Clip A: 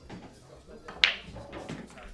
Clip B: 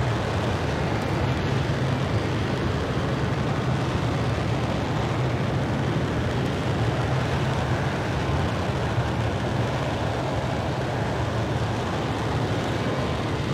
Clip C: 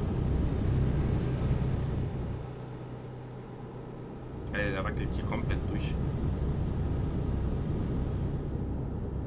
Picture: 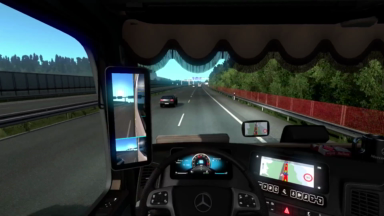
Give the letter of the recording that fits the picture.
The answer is C